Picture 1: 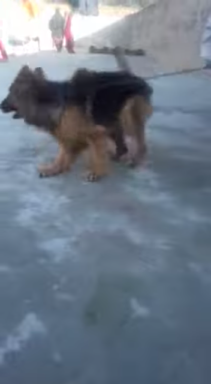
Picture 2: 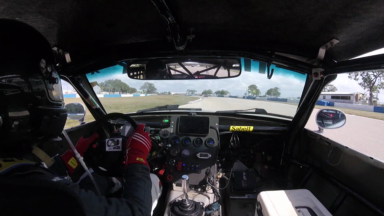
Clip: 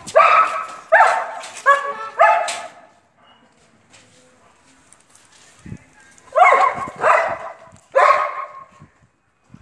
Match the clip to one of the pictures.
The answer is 1